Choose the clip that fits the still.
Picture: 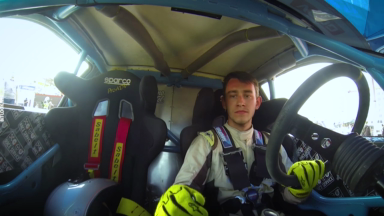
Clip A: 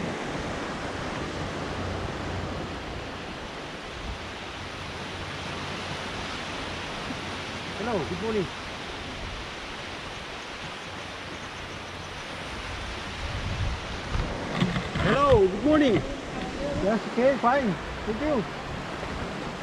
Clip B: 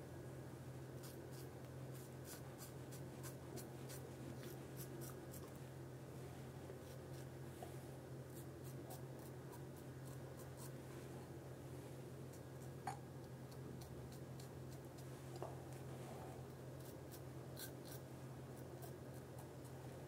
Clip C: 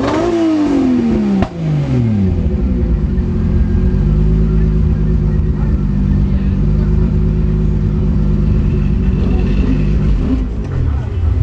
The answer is C